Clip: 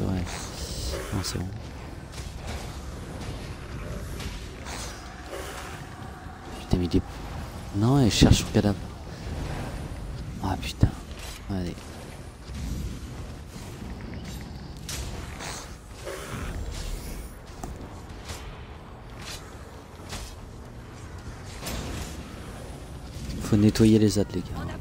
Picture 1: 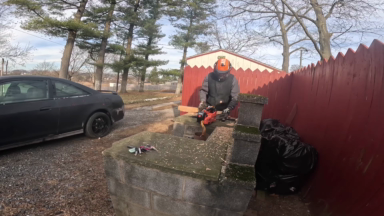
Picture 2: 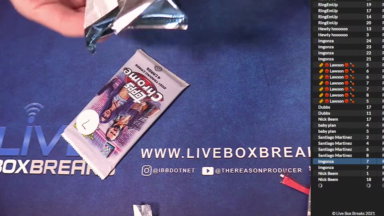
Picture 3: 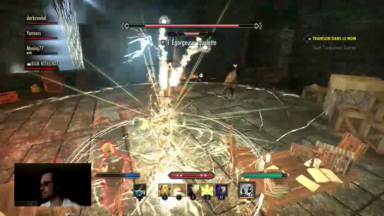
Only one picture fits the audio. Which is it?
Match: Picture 3